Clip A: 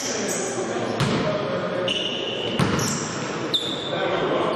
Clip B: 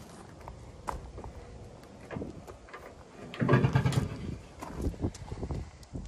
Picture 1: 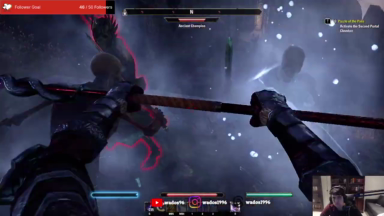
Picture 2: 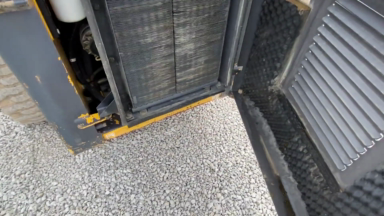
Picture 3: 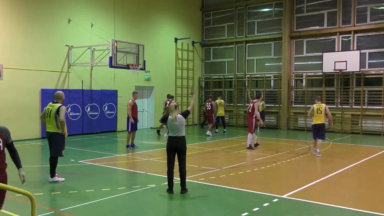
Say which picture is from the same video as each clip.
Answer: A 3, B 2